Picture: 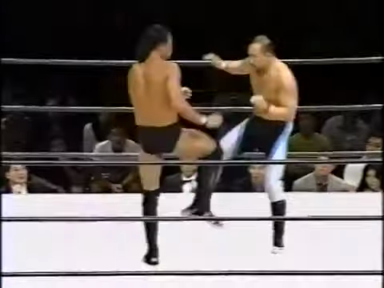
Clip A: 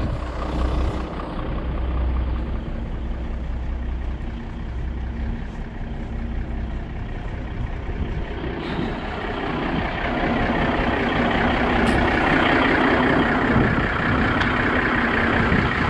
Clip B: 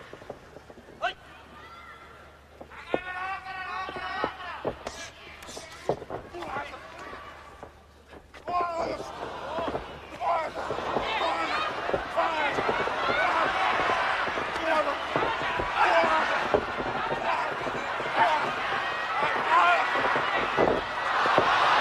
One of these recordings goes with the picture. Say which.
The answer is B